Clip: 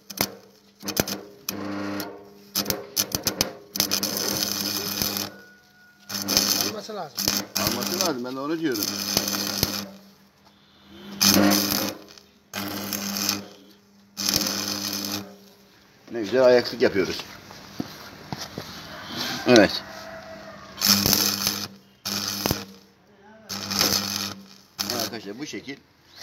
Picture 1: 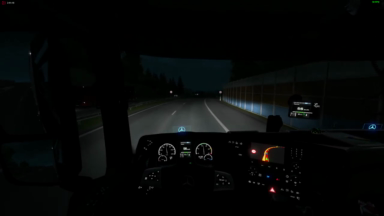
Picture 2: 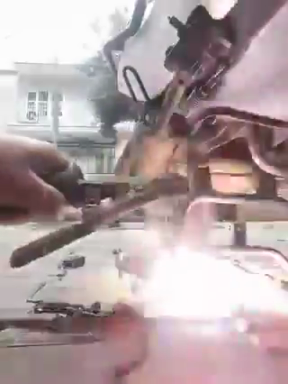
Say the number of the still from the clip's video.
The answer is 2